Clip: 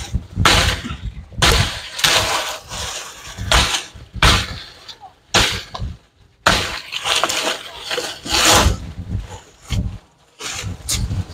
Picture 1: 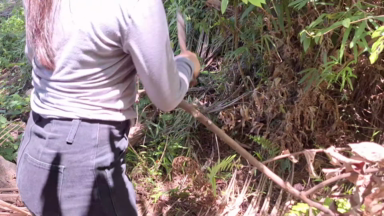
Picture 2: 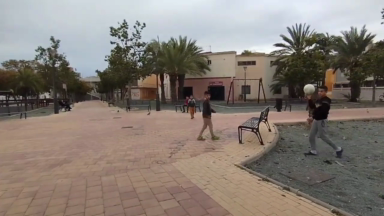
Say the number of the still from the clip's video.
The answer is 1